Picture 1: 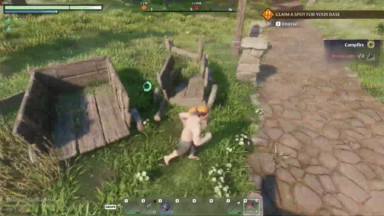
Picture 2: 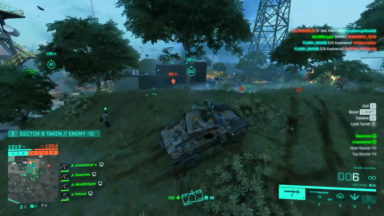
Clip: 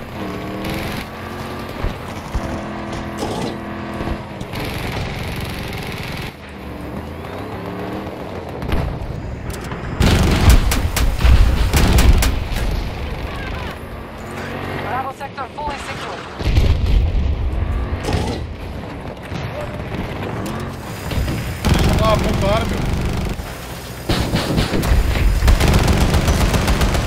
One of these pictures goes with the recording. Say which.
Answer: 2